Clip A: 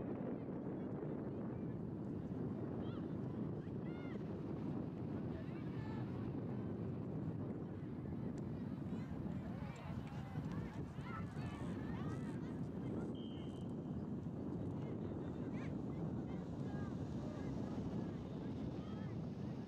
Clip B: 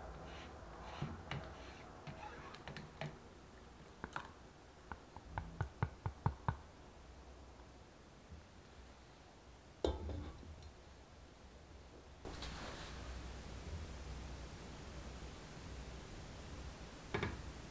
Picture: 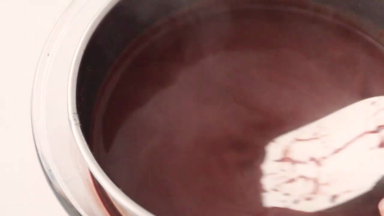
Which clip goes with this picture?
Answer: B